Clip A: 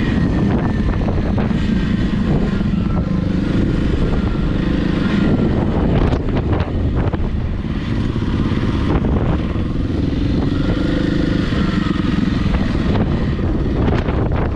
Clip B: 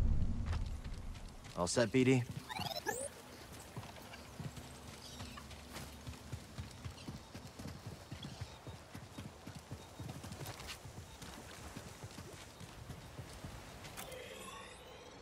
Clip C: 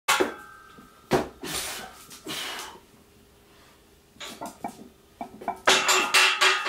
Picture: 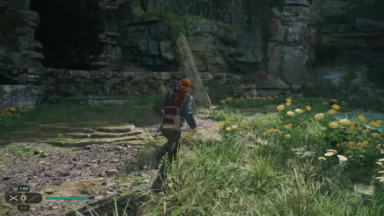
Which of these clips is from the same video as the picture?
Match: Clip B